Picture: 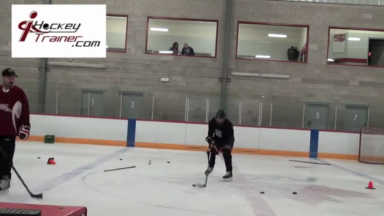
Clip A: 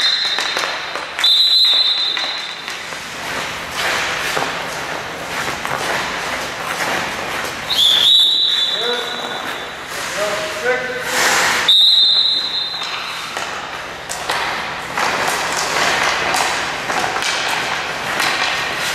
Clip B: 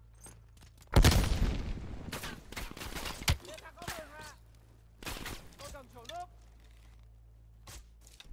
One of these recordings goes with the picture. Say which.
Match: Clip A